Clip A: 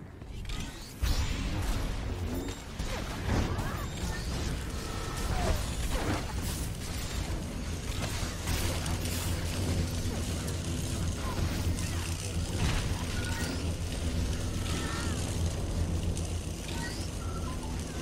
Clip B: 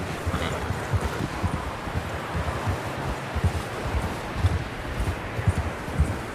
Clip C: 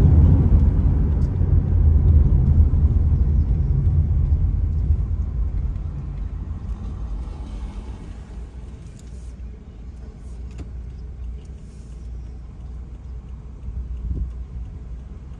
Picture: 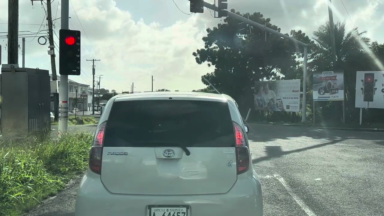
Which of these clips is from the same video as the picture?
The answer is C